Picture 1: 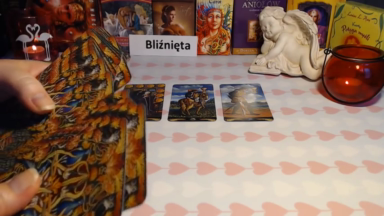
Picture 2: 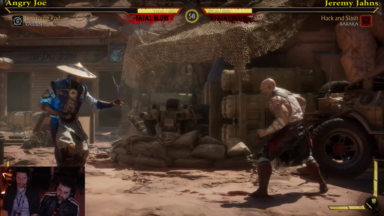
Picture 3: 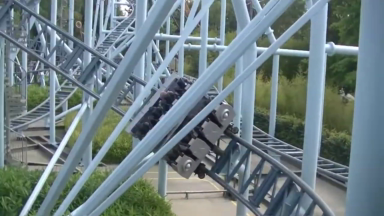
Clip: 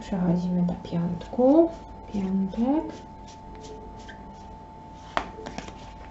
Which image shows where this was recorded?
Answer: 1